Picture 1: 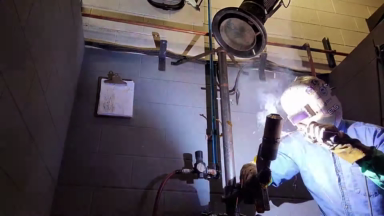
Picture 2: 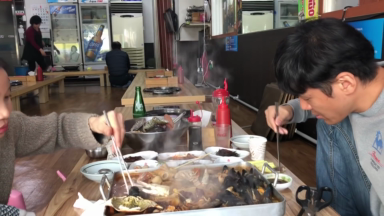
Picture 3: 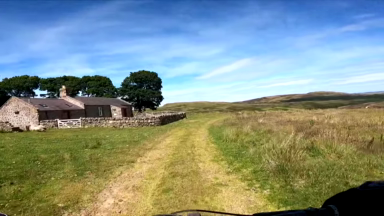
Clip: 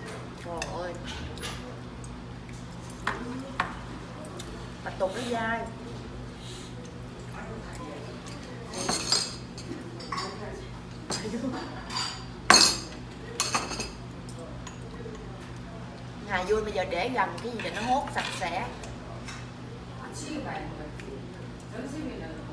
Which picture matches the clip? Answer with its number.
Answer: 2